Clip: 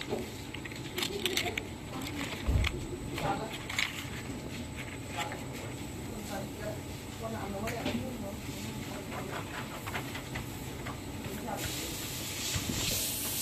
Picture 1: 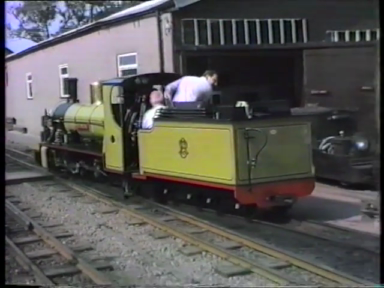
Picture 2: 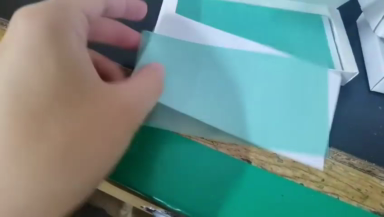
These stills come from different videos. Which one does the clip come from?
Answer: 2